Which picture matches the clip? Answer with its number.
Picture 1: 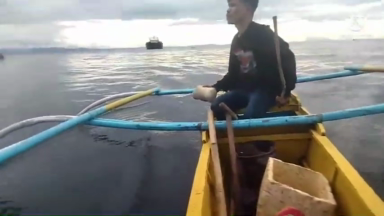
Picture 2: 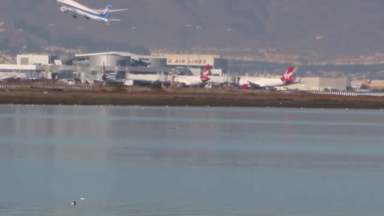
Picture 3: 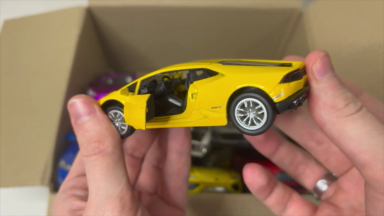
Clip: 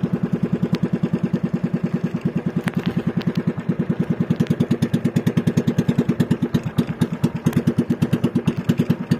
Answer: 1